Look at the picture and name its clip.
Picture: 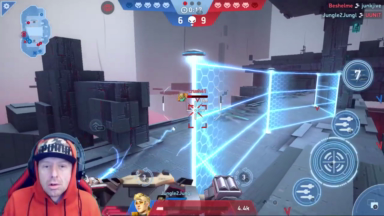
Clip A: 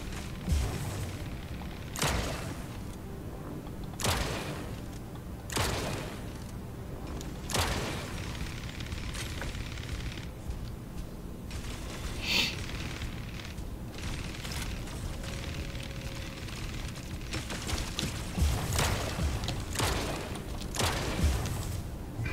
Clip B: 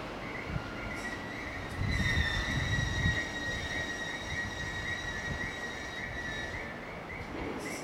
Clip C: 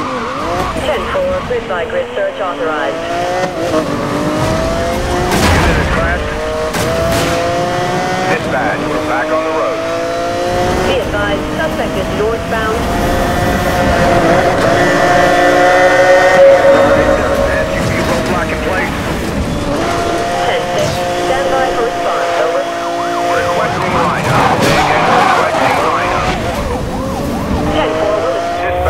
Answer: A